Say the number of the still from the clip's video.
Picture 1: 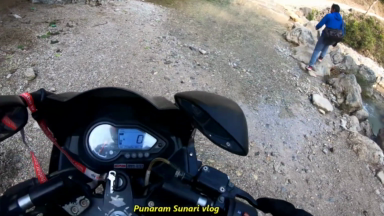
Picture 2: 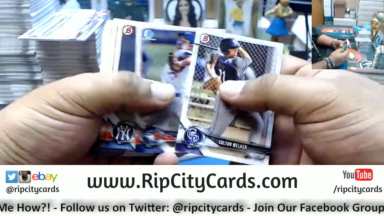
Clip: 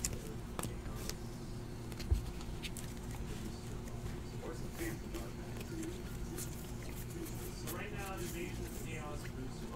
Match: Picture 2